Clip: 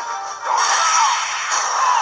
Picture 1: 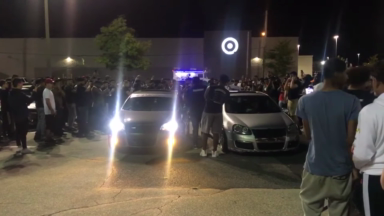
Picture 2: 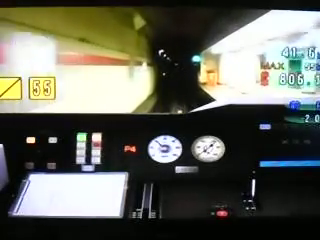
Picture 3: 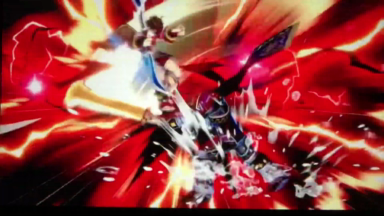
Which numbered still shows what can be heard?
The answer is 3